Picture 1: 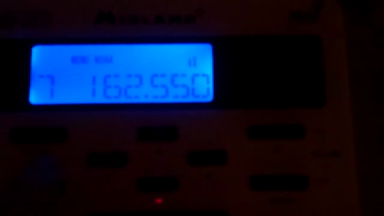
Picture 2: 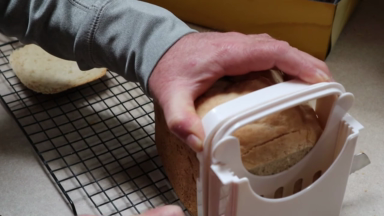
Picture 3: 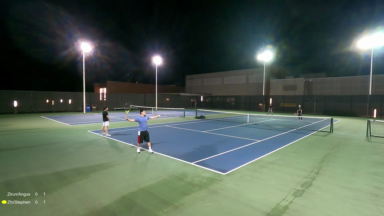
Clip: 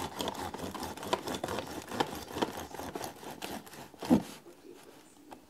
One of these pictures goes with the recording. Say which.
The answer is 2